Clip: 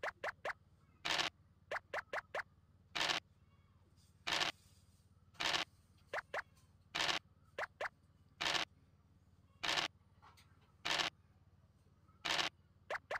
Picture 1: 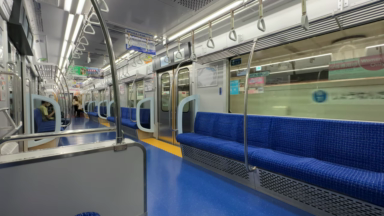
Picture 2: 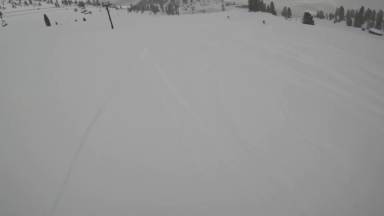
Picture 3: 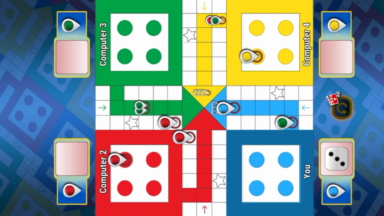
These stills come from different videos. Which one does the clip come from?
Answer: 3